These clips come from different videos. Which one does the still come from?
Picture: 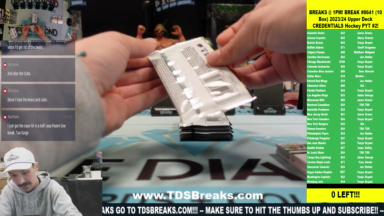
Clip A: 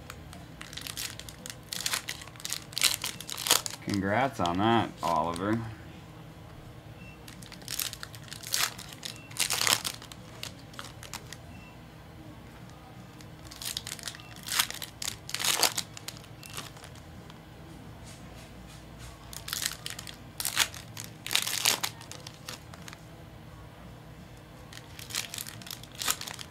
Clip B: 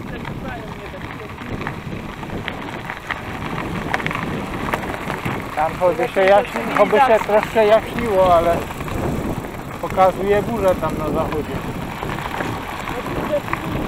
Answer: A